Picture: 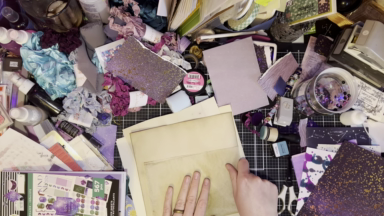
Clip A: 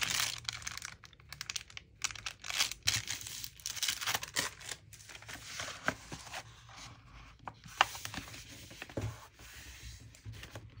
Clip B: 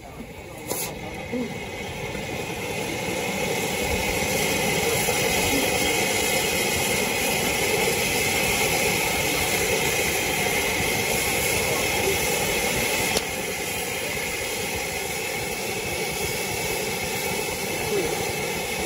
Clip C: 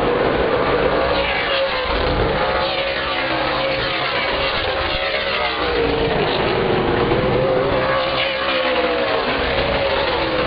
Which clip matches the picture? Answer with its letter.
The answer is A